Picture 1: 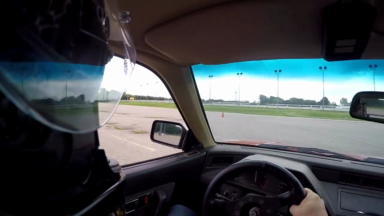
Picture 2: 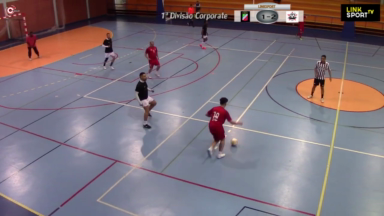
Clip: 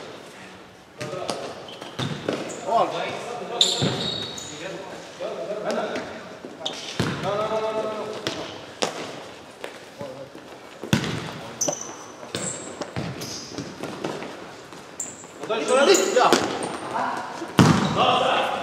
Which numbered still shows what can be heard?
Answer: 2